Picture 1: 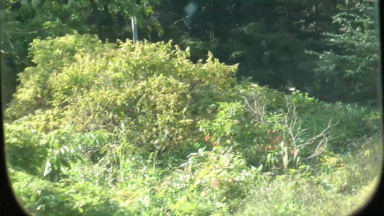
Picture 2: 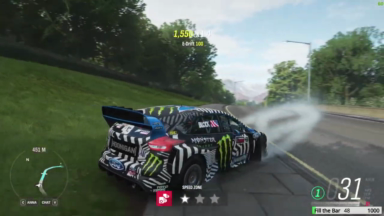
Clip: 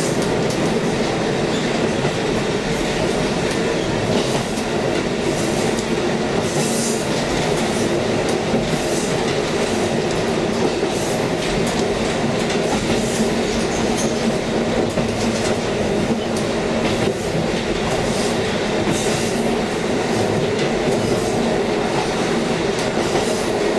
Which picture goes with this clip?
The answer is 1